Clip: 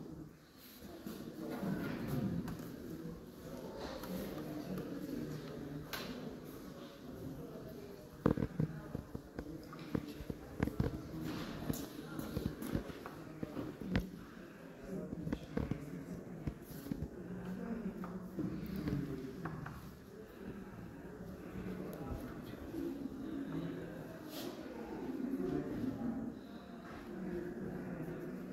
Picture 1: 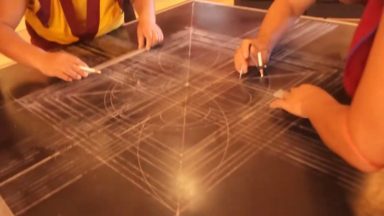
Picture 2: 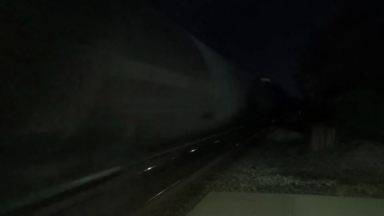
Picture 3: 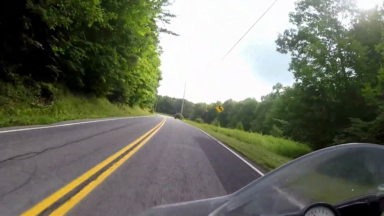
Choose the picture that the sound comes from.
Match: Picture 1